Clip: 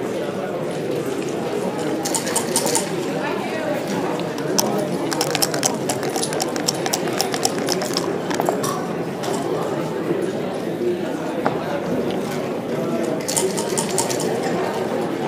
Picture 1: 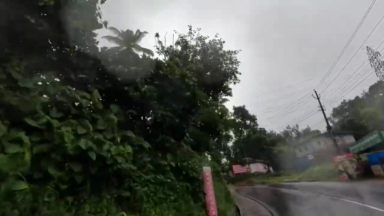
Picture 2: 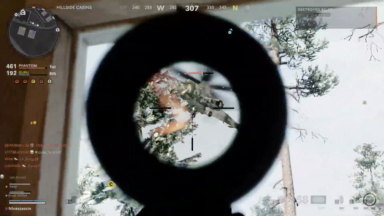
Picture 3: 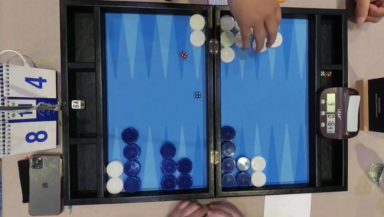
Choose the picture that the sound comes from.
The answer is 3